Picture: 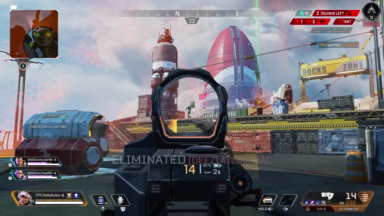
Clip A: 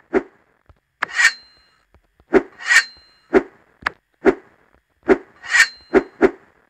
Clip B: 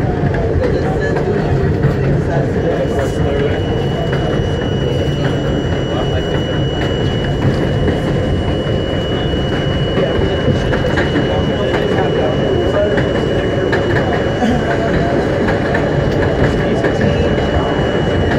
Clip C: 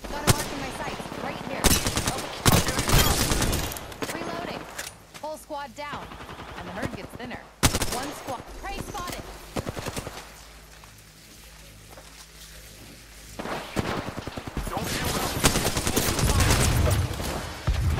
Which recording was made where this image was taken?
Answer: C